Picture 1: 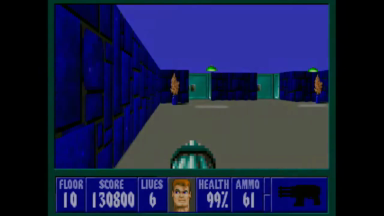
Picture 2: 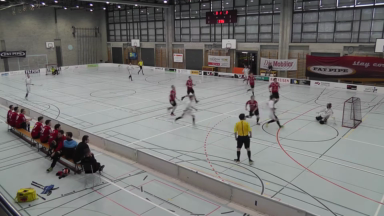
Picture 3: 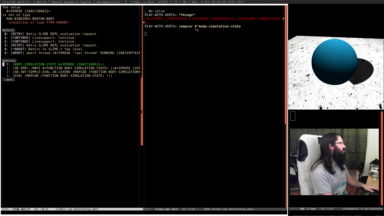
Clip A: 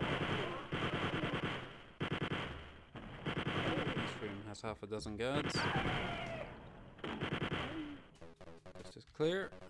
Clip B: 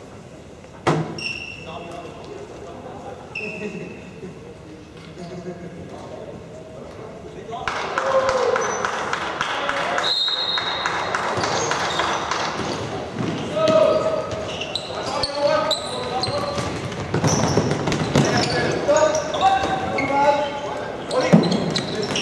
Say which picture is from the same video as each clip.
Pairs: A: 1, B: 2